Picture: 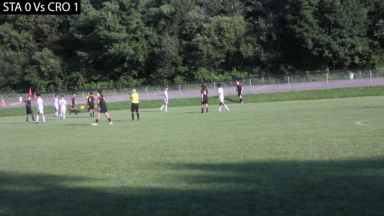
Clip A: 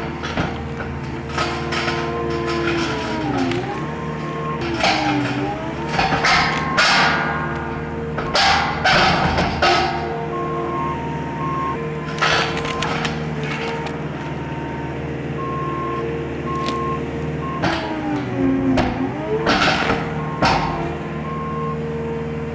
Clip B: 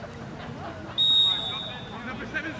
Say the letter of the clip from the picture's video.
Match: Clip B